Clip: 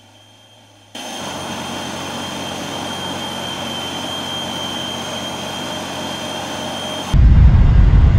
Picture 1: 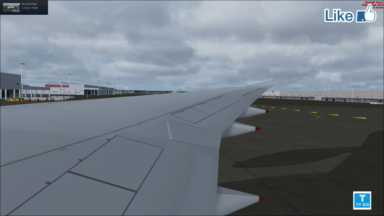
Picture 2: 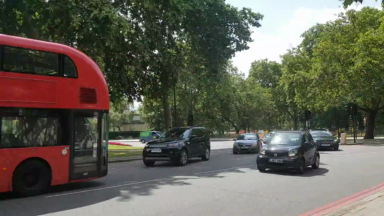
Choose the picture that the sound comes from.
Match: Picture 1